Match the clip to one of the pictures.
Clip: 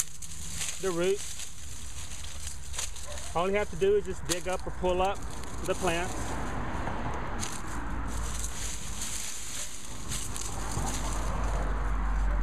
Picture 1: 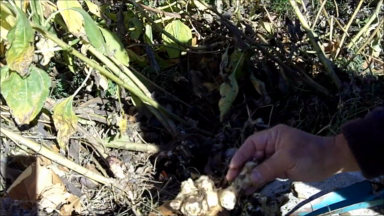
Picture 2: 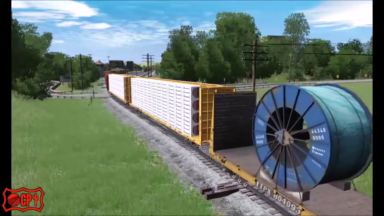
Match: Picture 1